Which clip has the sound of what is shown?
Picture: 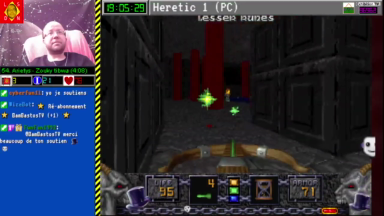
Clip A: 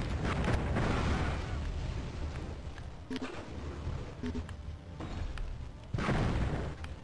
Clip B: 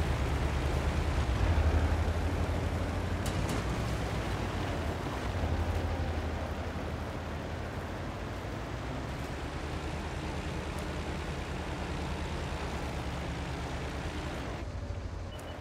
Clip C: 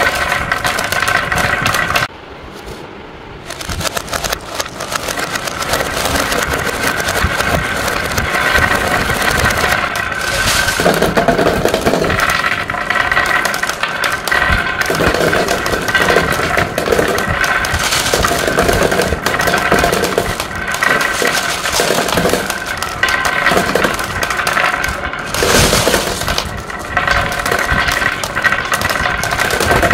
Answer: A